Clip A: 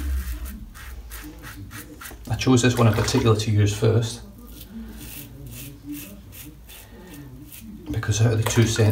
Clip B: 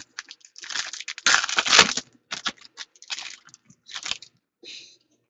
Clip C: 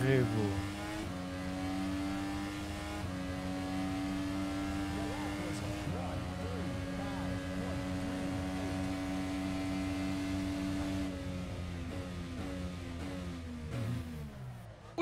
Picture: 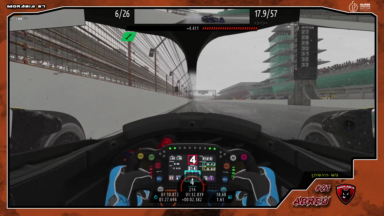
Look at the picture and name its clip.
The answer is C